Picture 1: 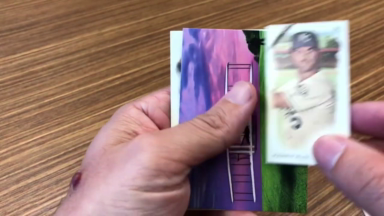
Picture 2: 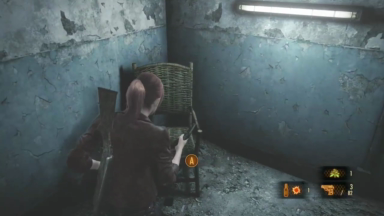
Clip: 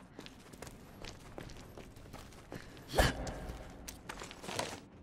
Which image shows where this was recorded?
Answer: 2